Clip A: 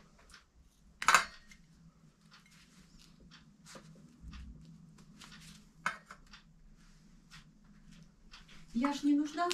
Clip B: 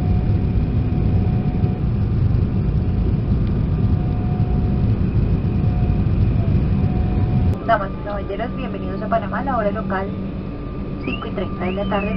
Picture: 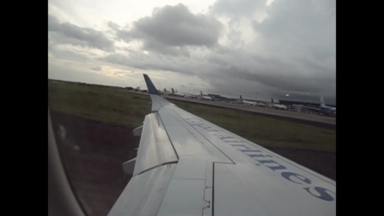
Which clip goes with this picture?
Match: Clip B